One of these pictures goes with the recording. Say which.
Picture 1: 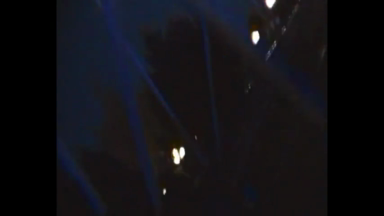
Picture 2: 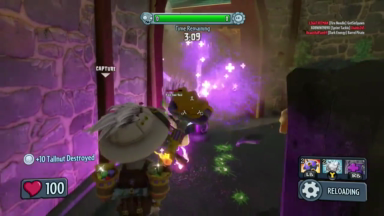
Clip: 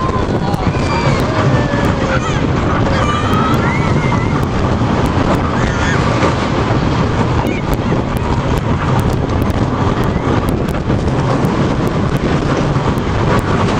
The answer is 1